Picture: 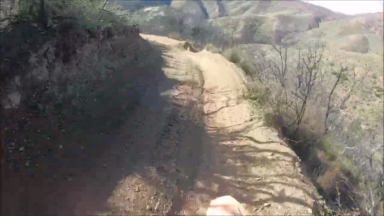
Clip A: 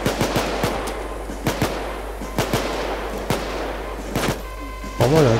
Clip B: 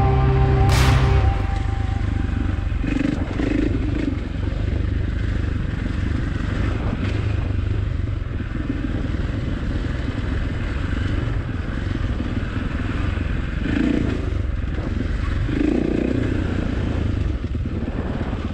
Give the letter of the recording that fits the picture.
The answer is B